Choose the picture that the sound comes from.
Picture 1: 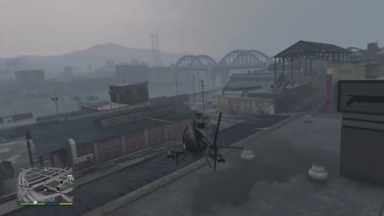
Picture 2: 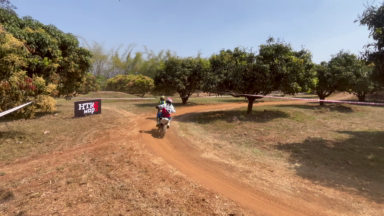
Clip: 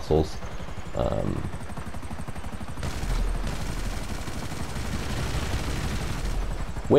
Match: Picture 1